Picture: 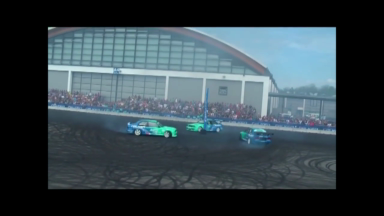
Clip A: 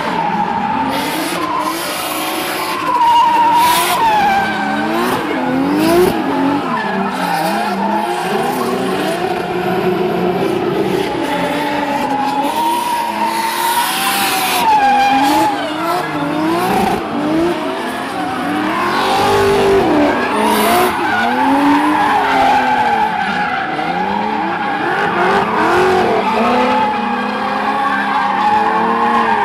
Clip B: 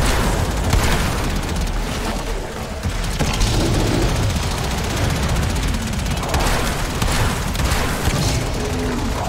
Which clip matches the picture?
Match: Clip A